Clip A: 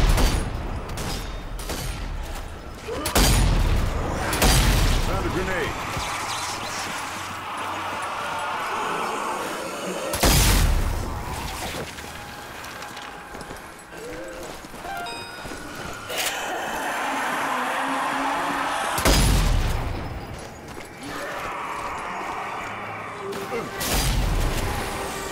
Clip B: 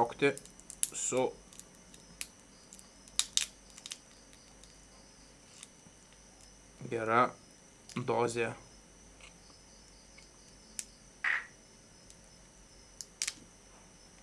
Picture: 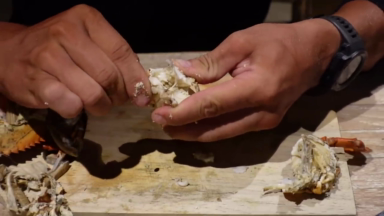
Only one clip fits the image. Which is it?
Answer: B